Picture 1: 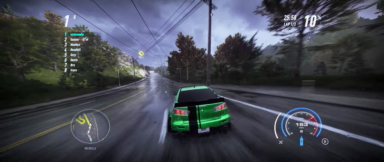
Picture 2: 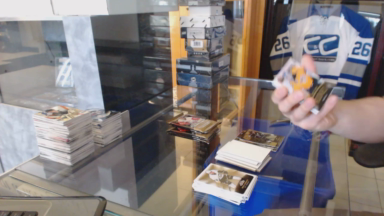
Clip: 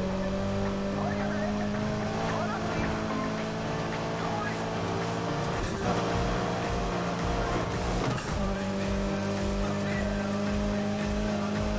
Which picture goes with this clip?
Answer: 1